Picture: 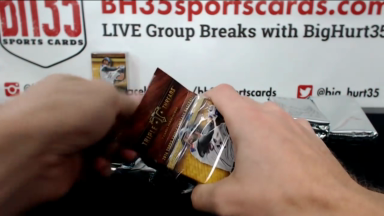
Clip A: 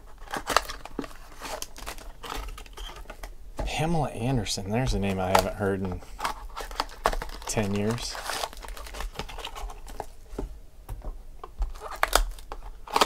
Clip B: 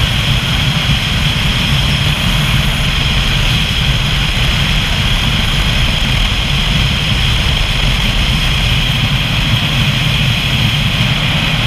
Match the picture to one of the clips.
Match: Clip A